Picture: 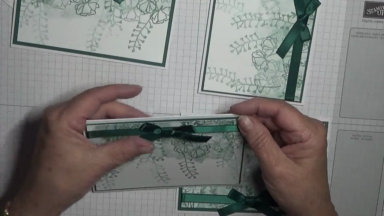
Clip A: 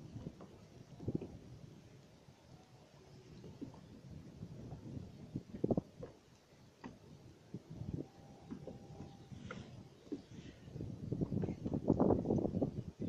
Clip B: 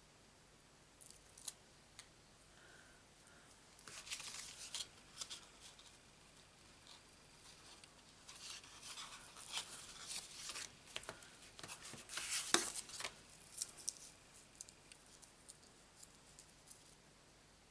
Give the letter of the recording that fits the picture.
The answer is B